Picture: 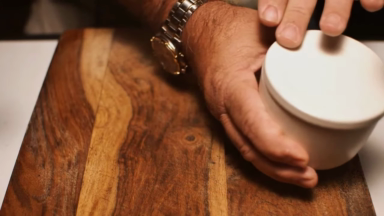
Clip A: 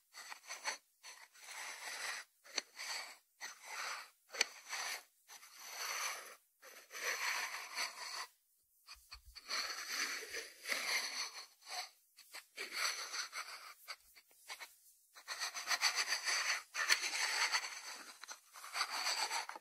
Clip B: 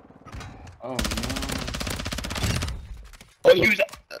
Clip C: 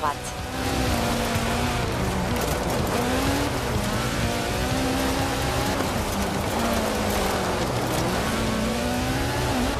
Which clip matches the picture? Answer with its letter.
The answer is A